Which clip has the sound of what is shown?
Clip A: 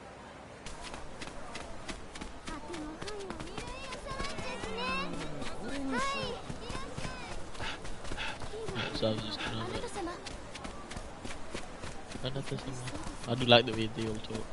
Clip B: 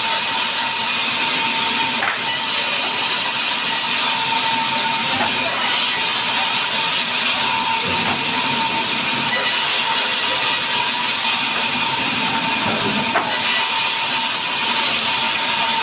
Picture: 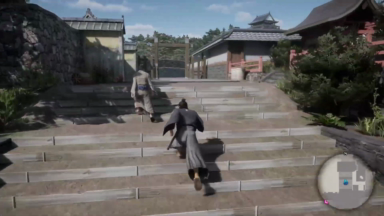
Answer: A